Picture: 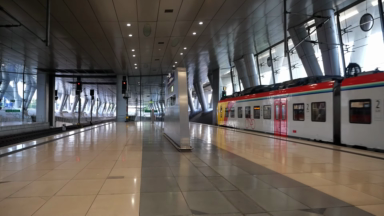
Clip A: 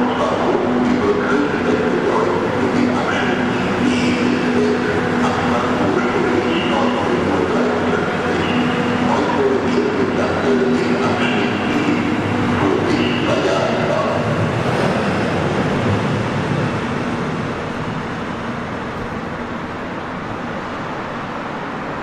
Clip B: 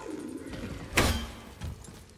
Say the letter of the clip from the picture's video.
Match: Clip A